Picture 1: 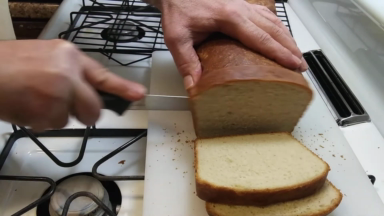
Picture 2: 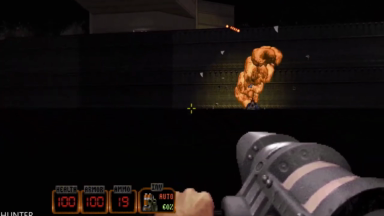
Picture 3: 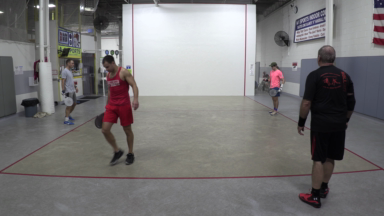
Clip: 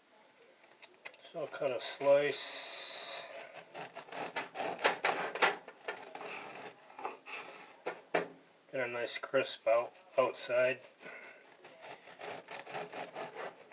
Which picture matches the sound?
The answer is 1